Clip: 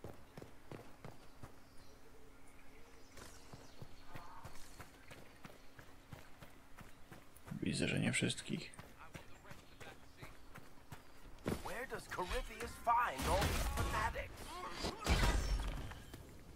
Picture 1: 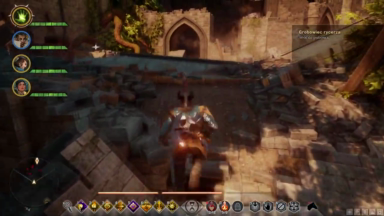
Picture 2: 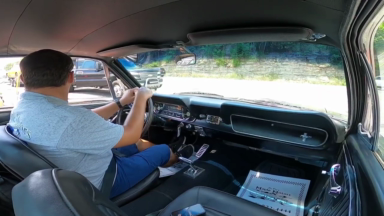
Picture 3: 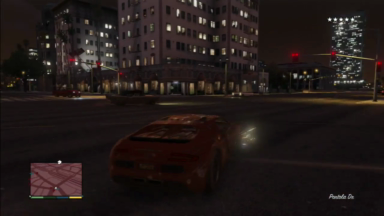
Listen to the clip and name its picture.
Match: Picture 1